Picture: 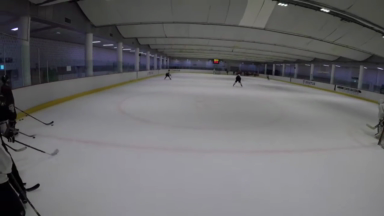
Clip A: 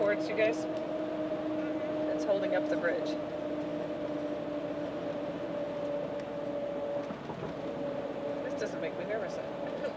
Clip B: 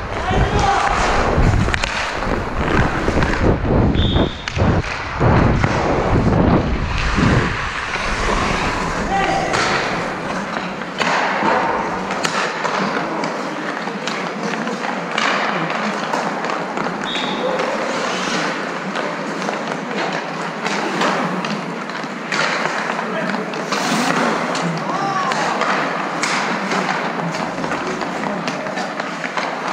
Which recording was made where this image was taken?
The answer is B